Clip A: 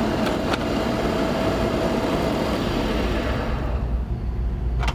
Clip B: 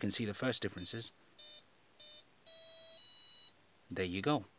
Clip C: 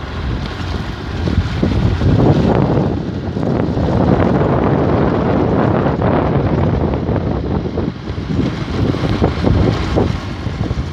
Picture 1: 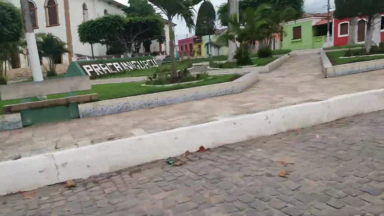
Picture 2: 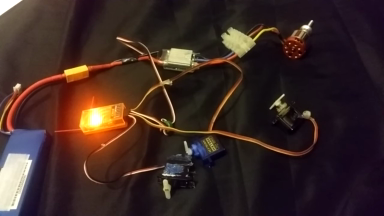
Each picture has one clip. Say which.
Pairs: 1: C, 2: B